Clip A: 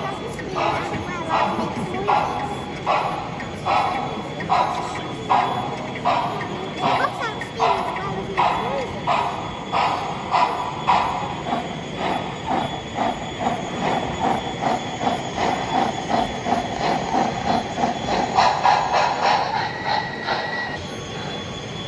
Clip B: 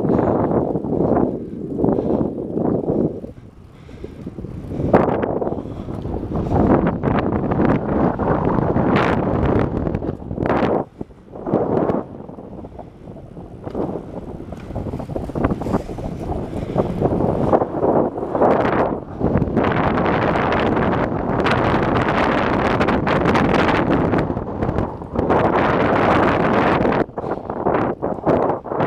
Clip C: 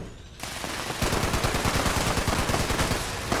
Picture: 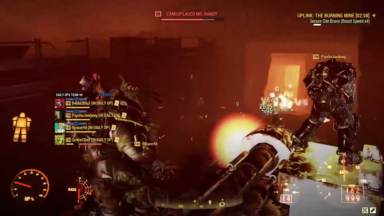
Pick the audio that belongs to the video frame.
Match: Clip C